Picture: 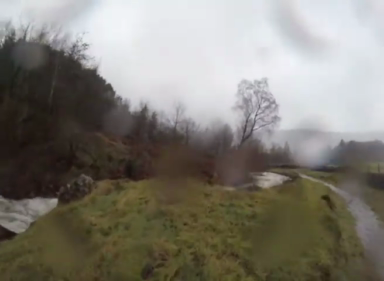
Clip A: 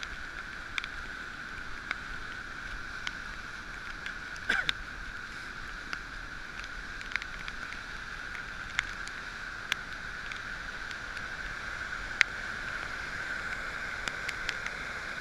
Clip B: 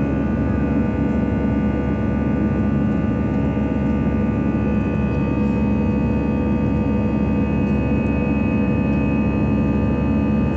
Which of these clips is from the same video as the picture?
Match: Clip A